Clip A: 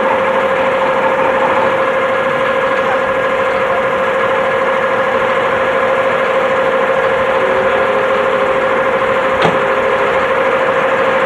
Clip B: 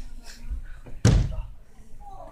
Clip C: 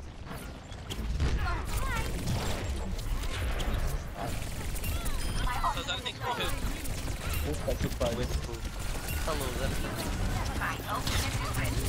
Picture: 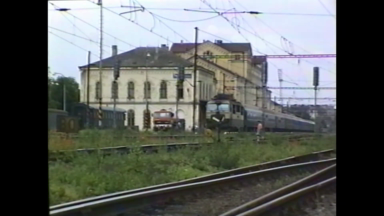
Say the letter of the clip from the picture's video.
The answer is A